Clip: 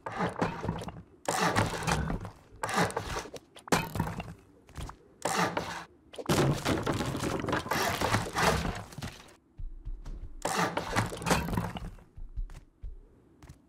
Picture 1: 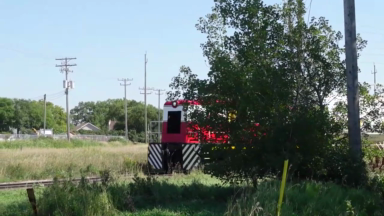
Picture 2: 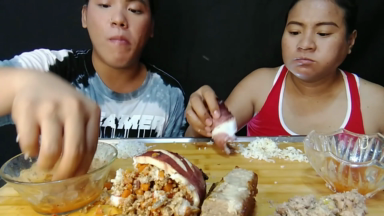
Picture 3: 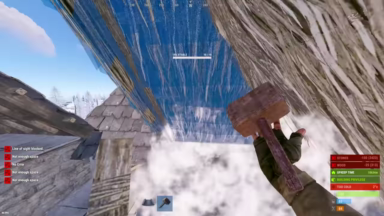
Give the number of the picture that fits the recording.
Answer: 3